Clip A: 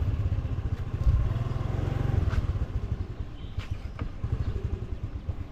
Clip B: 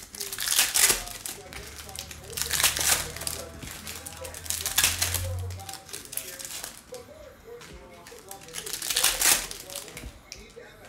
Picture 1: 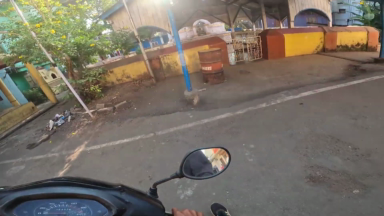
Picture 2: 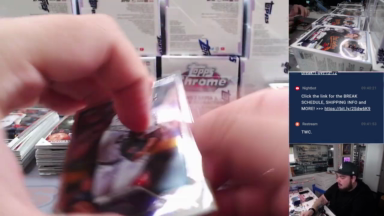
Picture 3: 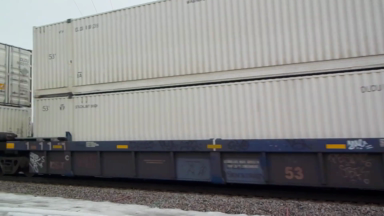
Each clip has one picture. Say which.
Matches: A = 1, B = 2